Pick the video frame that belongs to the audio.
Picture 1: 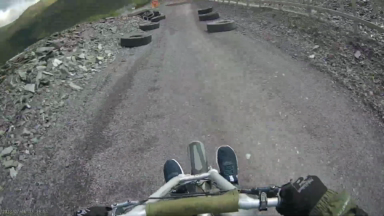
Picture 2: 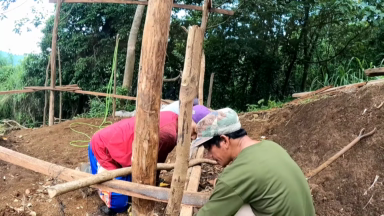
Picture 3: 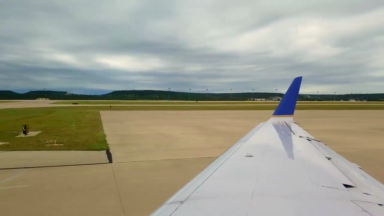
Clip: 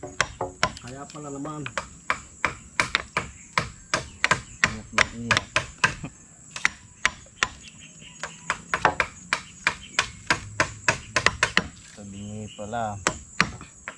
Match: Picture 2